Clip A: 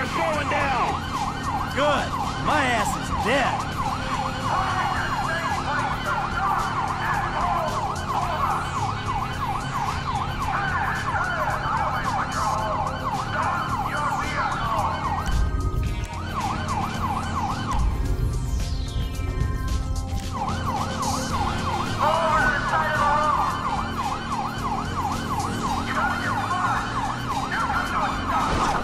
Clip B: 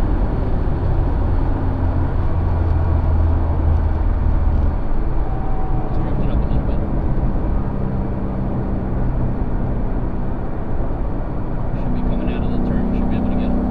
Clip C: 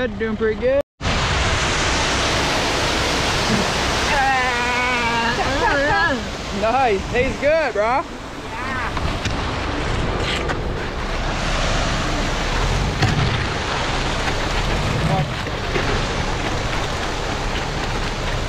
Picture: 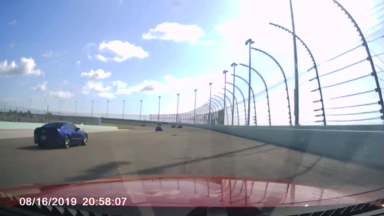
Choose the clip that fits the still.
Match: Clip B